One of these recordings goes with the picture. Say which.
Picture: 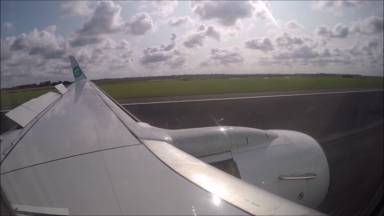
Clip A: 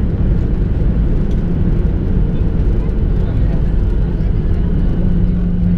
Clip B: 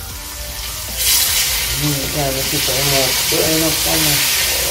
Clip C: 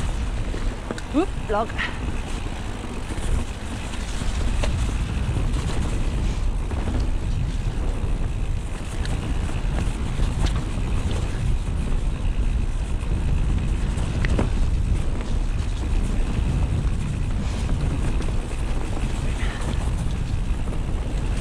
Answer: A